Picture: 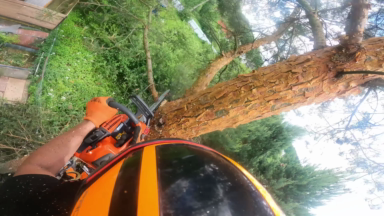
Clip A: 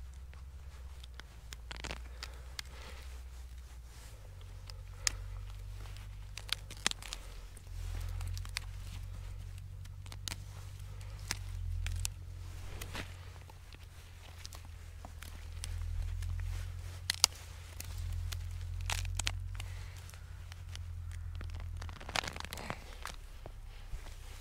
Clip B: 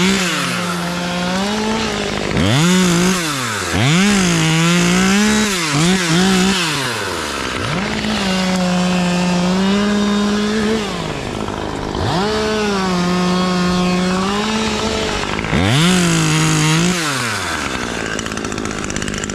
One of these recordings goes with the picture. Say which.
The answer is B